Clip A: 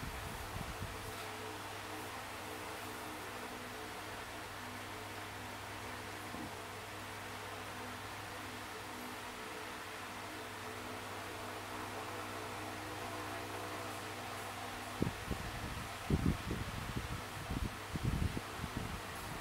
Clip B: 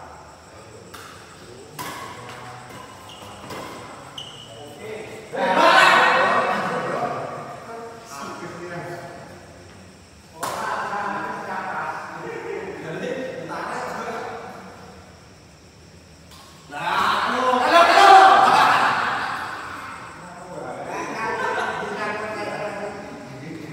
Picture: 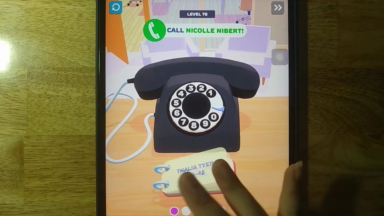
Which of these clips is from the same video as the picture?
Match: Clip A